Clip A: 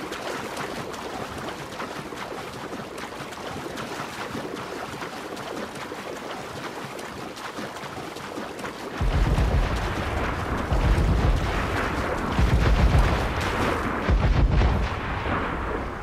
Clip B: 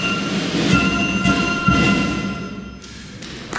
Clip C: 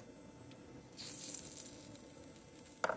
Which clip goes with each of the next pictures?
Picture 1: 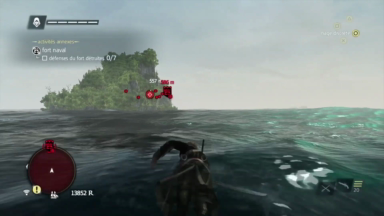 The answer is A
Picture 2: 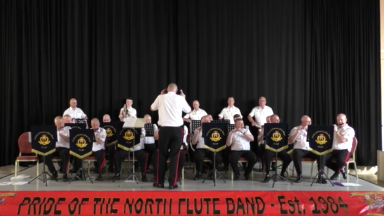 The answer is B